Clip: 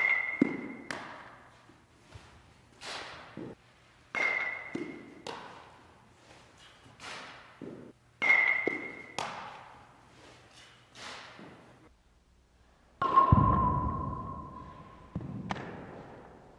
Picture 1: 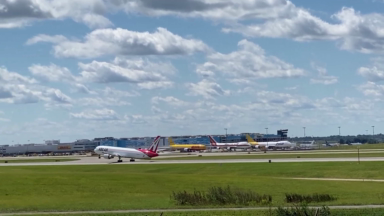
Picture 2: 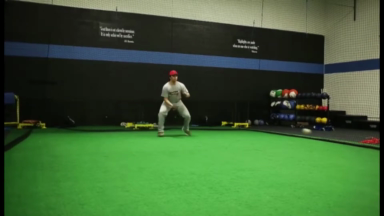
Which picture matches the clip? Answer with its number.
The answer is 2